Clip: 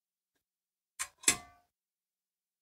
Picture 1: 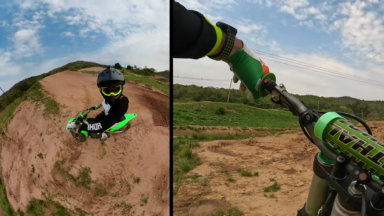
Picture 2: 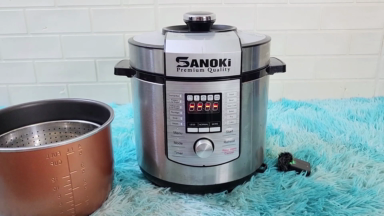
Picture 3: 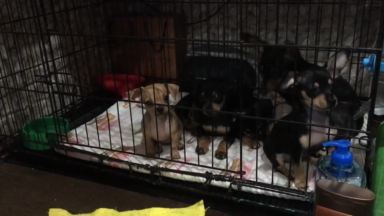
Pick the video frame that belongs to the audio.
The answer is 2